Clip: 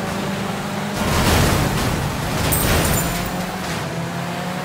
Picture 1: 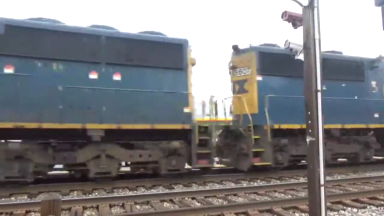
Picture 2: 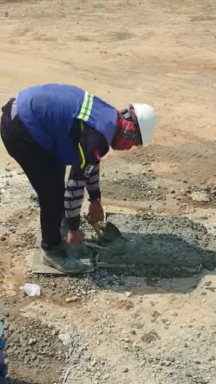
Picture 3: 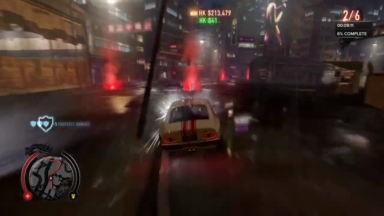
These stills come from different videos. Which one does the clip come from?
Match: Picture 3